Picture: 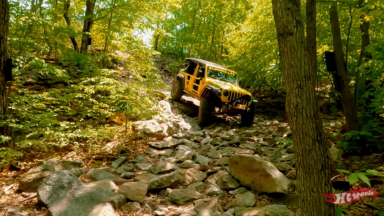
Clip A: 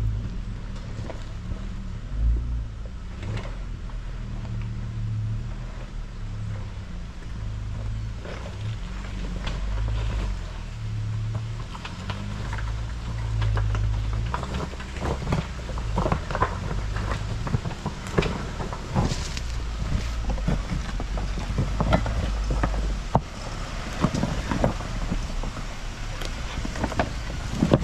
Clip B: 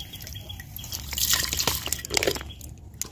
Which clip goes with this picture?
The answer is A